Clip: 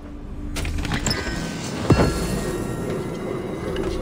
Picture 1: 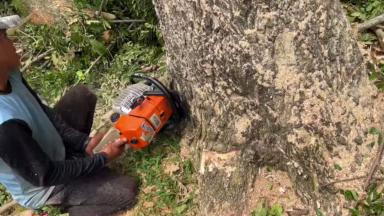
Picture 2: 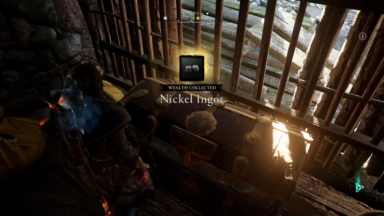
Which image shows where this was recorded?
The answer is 2